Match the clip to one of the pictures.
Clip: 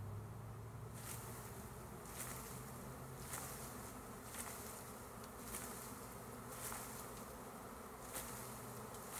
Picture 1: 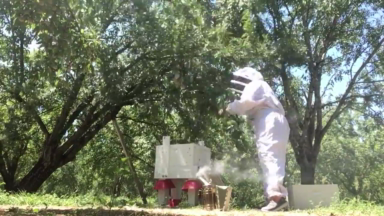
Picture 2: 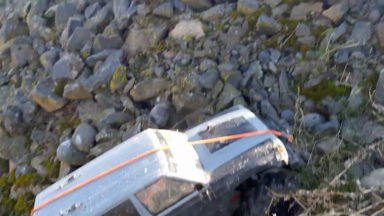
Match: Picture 1